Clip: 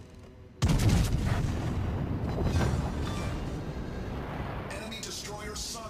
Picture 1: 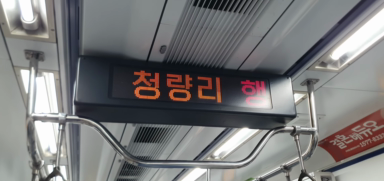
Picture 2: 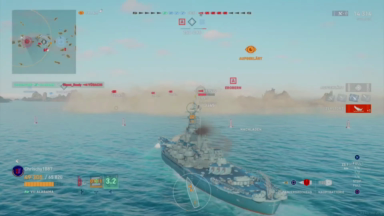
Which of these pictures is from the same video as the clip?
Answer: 2